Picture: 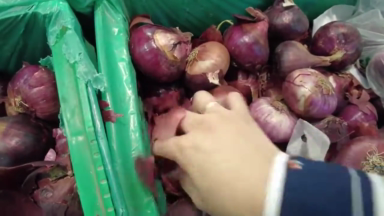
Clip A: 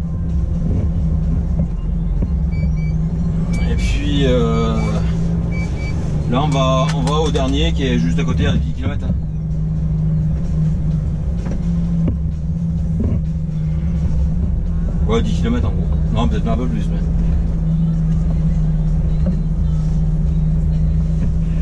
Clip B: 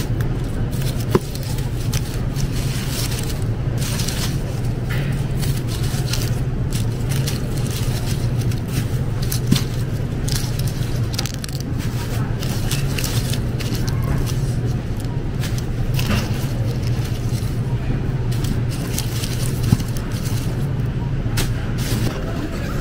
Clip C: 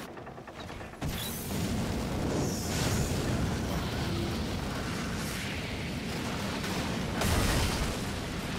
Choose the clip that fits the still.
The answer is B